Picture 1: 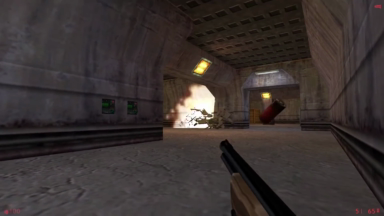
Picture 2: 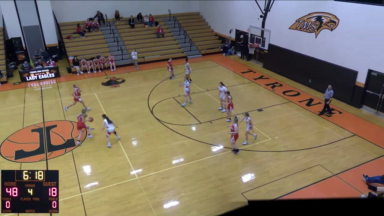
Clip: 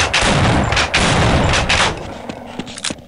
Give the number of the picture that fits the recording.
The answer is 1